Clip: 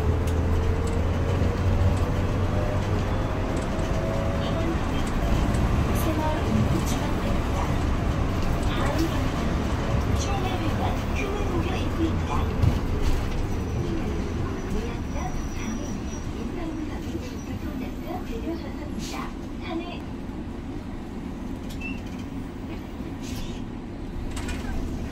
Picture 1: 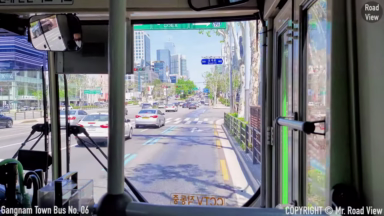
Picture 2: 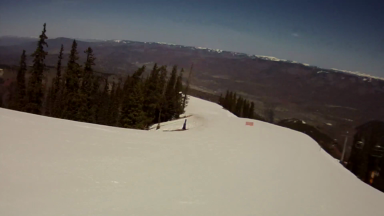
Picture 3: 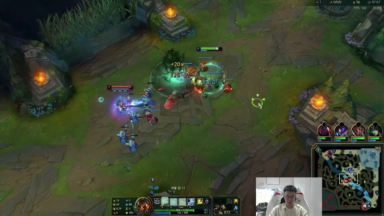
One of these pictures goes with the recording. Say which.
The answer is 1